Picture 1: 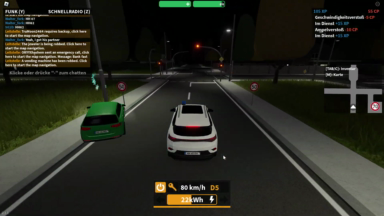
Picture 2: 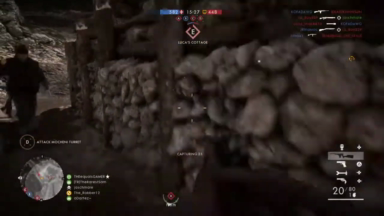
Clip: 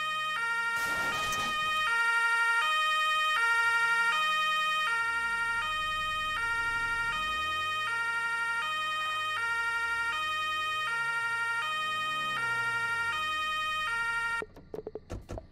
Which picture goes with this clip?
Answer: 1